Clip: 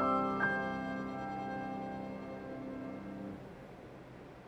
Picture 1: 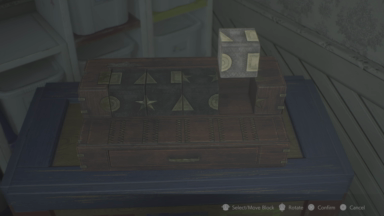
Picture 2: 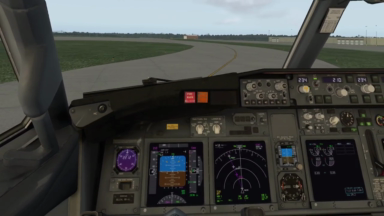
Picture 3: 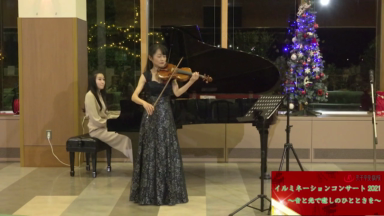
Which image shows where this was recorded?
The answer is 3